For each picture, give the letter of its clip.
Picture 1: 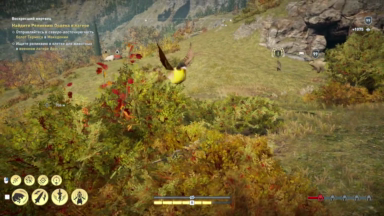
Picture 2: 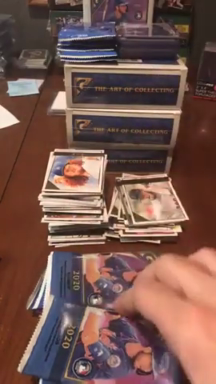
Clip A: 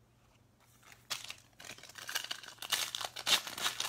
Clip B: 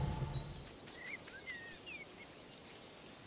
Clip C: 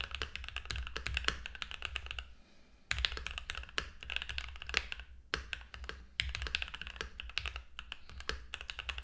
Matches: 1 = B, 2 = A